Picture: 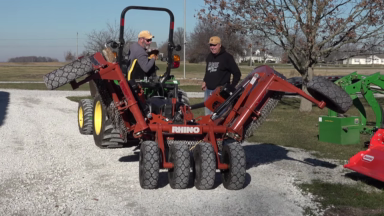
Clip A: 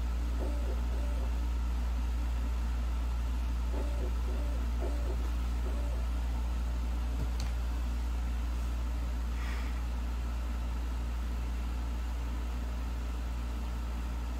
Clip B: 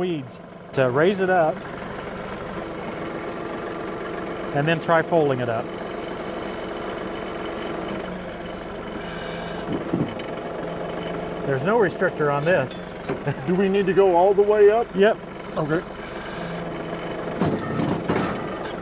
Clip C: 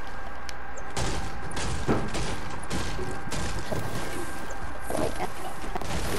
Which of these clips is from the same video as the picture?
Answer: B